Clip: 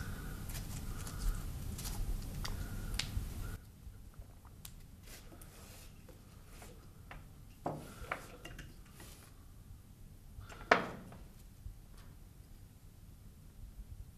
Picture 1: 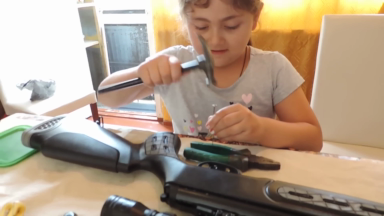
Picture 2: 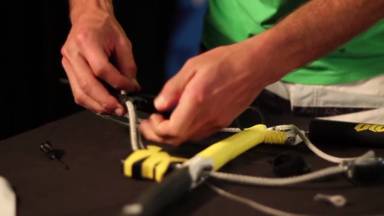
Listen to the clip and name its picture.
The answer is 2